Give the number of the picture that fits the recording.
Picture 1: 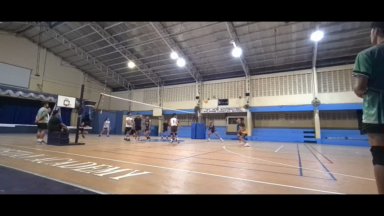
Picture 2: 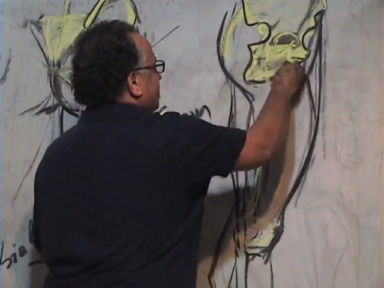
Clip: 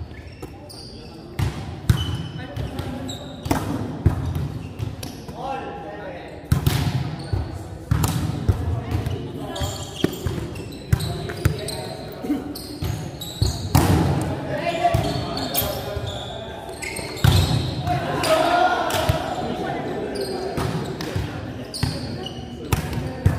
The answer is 1